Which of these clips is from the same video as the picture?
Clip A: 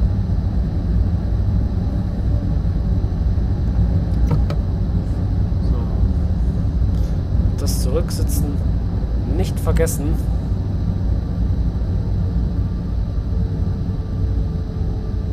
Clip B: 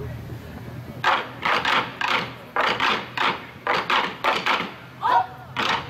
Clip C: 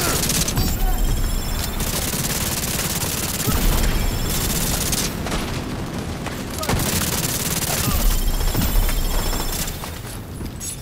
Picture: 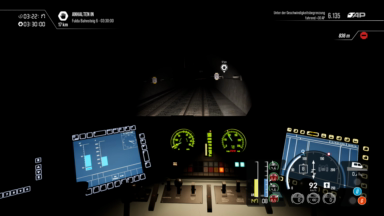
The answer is A